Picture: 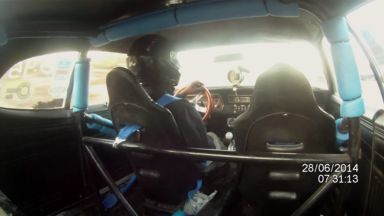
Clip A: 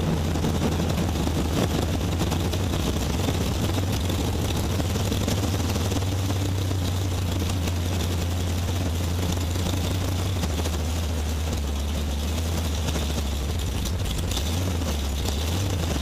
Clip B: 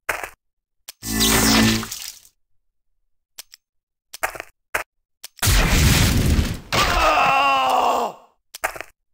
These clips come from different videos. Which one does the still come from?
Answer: A